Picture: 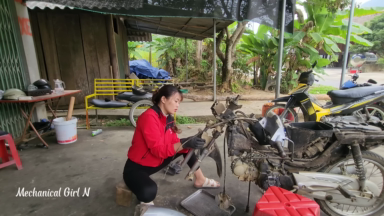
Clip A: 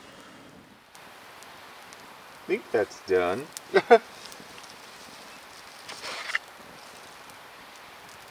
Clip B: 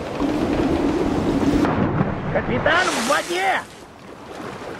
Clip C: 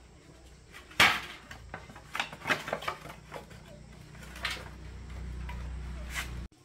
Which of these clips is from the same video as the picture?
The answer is C